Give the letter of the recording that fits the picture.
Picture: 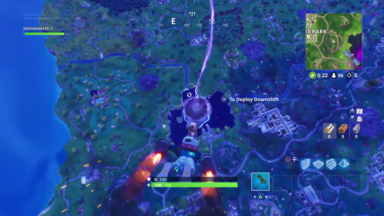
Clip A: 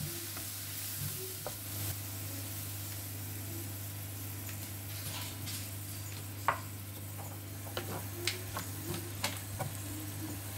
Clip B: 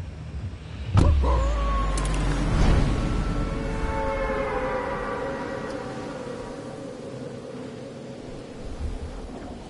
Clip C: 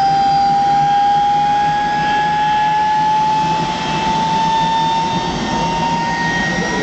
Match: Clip B